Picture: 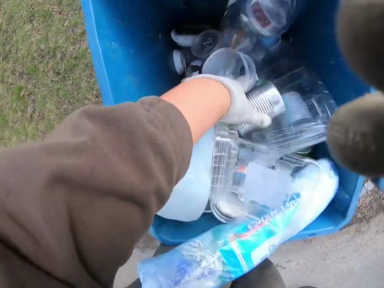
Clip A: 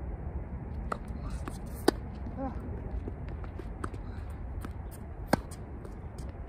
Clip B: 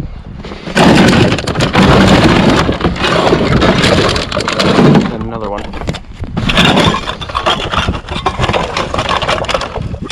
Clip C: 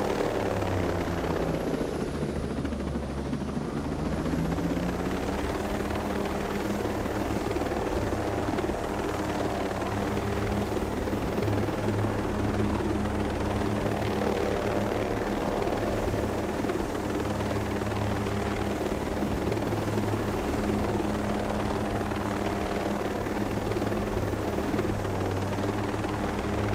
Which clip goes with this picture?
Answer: B